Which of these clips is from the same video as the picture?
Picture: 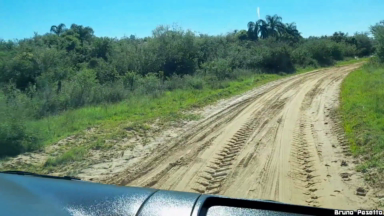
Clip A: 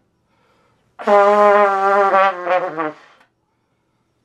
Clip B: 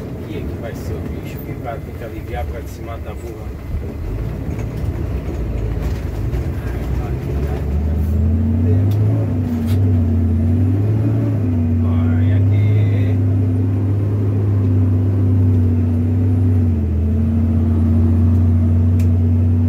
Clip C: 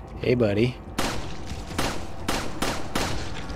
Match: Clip B